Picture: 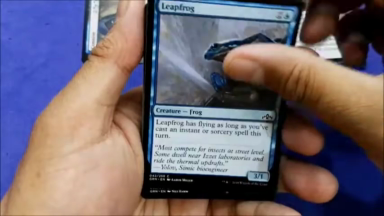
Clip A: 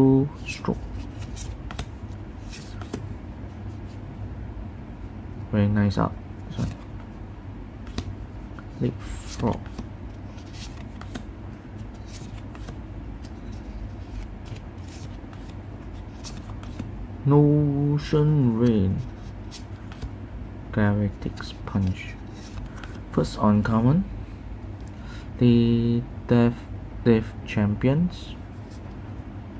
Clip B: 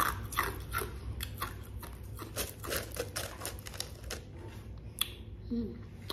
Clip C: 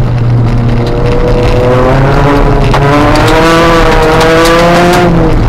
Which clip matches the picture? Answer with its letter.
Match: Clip A